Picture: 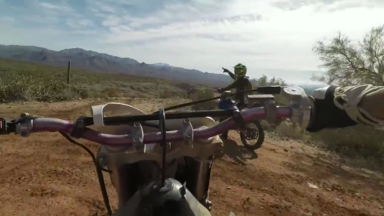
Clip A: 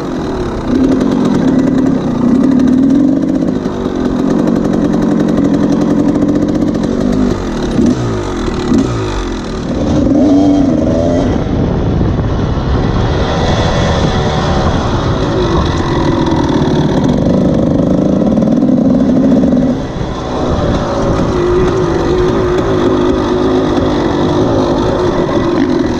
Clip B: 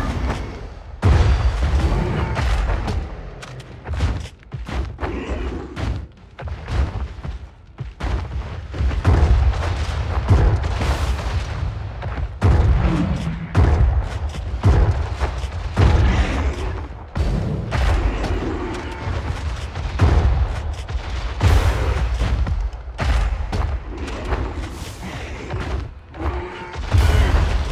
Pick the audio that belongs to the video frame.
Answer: A